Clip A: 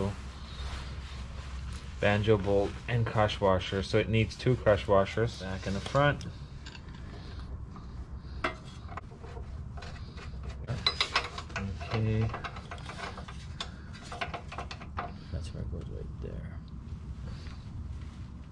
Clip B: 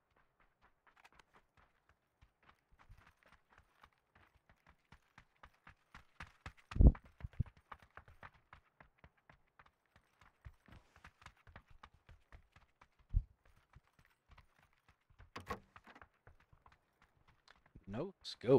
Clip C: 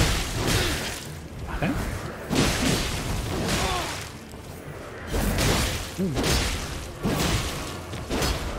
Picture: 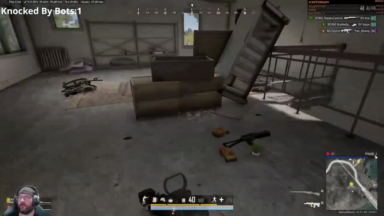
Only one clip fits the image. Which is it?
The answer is B